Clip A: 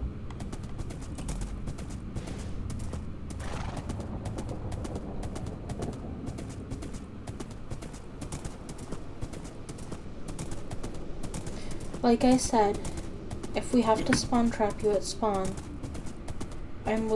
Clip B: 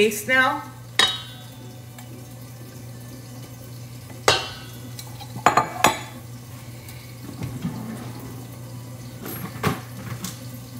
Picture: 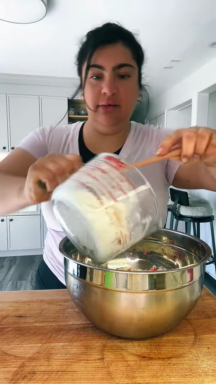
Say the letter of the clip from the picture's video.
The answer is B